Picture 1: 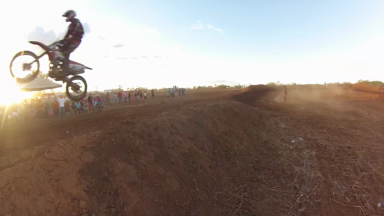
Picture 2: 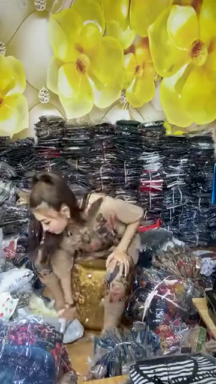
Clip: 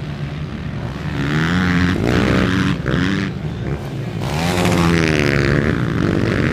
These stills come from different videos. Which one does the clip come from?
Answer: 1